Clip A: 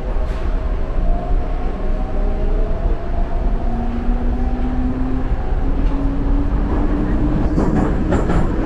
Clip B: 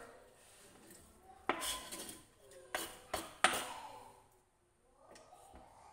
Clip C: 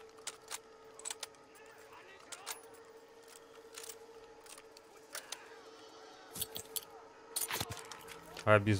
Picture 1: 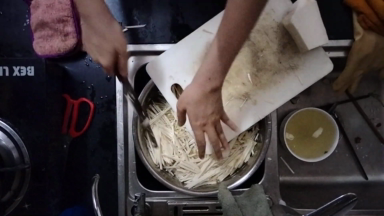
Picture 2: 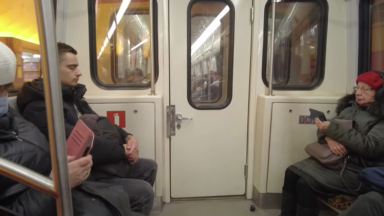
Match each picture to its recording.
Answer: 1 B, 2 A